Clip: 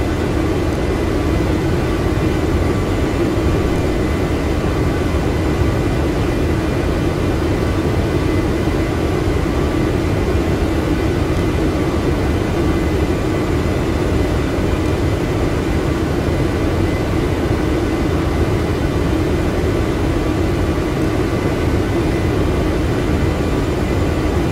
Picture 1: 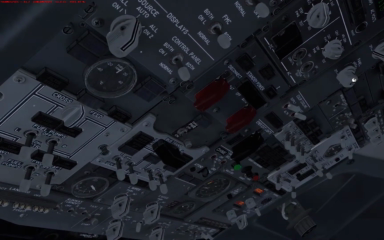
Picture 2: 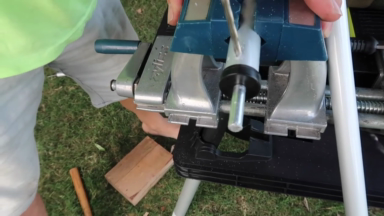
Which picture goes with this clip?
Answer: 1